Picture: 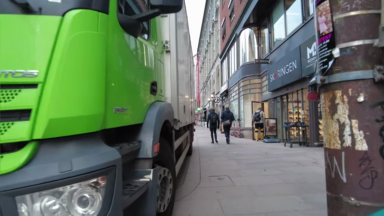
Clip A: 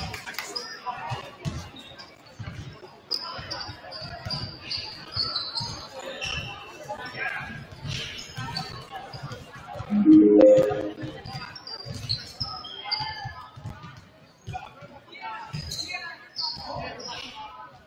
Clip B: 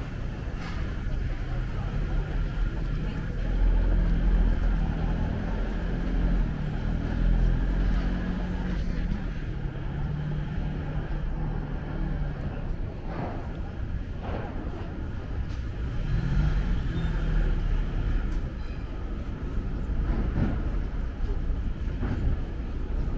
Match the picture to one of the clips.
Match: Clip B